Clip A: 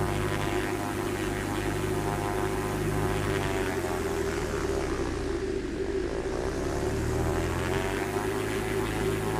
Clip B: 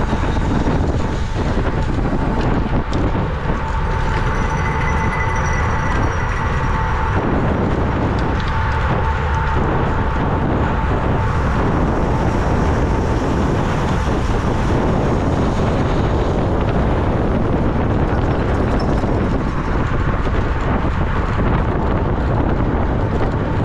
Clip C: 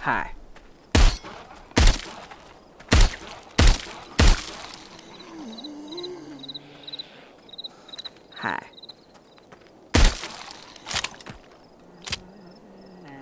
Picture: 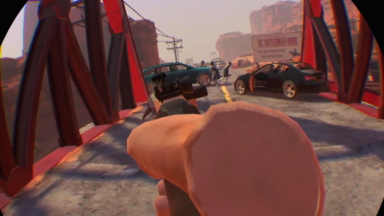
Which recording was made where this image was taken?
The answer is C